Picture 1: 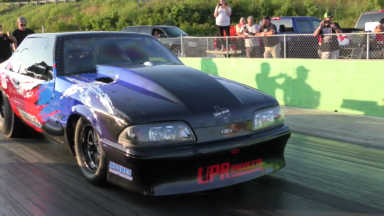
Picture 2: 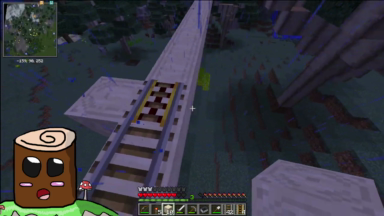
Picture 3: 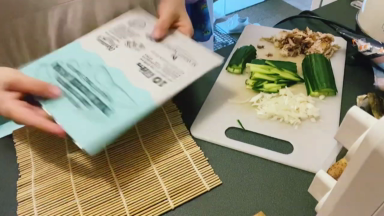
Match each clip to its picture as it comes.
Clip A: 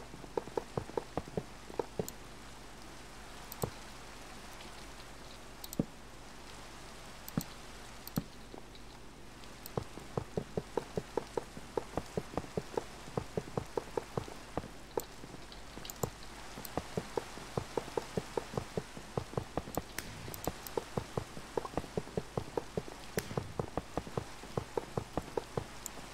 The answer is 2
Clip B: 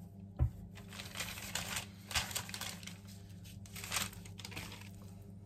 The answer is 3